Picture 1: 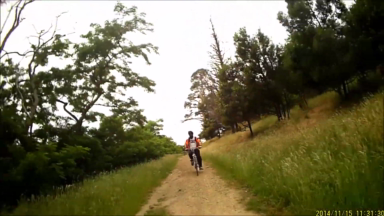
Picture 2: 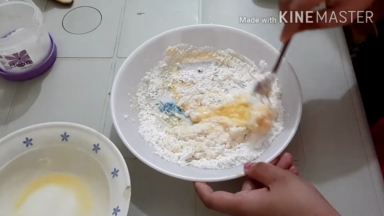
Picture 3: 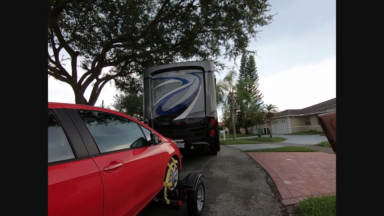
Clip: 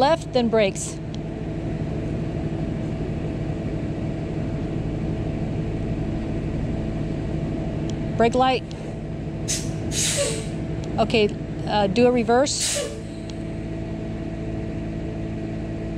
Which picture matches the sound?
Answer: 3